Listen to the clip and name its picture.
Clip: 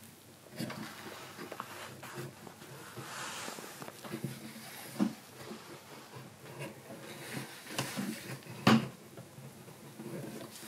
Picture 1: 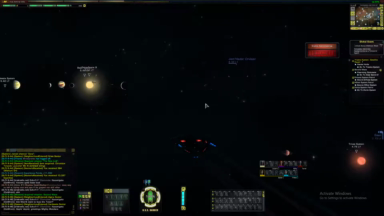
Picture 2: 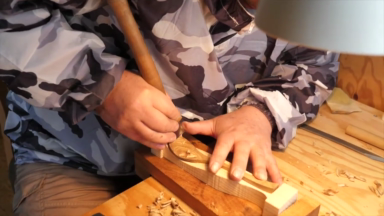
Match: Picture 2